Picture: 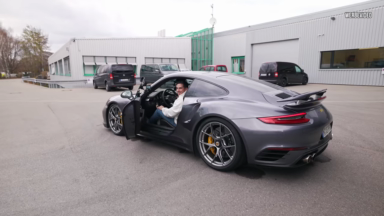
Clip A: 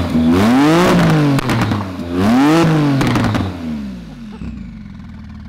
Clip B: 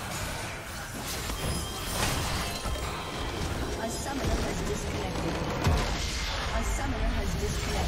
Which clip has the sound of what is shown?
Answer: A